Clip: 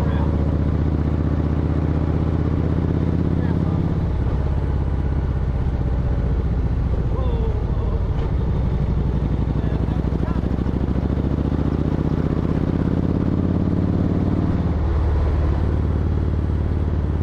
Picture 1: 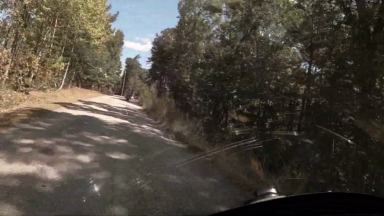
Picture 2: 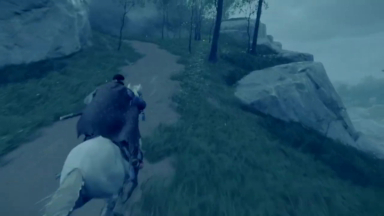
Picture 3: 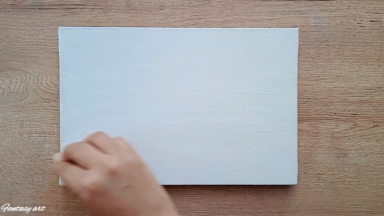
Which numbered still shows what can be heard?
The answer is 1